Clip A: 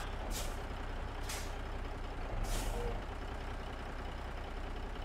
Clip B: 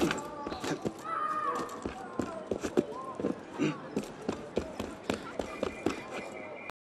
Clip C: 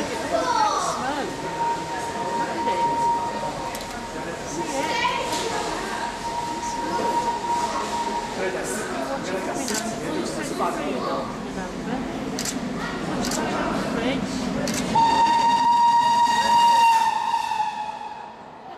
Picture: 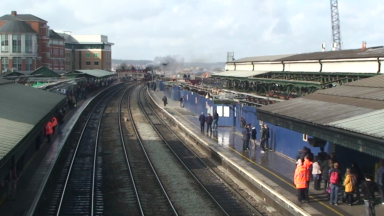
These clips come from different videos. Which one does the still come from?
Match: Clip C